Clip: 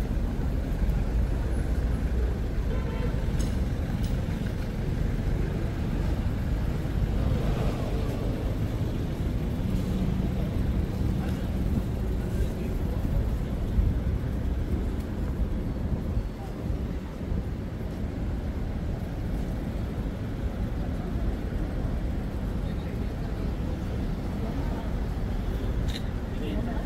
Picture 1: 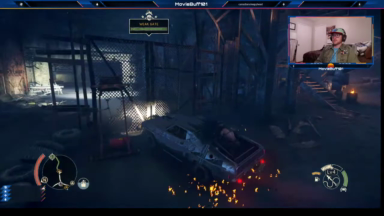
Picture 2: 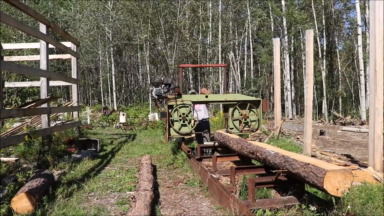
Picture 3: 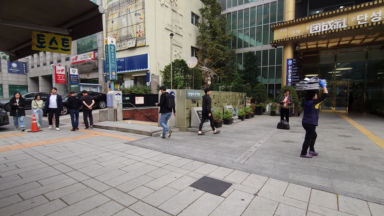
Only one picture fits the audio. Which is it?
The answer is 3